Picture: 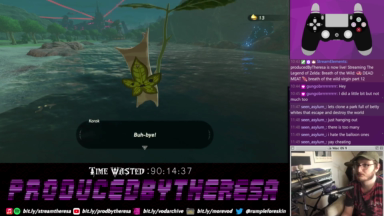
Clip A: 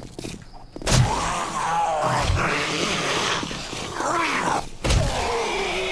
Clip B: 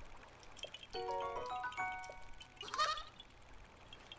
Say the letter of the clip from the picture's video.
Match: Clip B